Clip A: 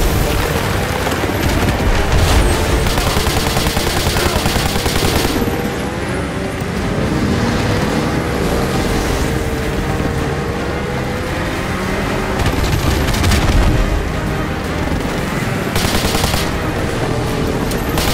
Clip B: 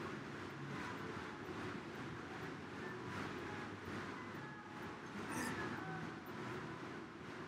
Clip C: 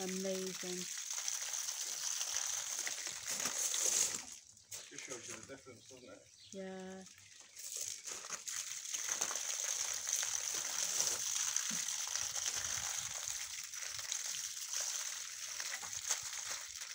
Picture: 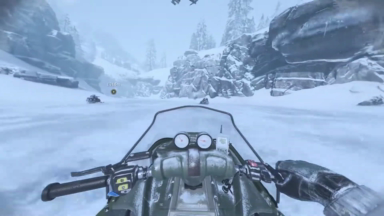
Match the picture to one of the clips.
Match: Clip A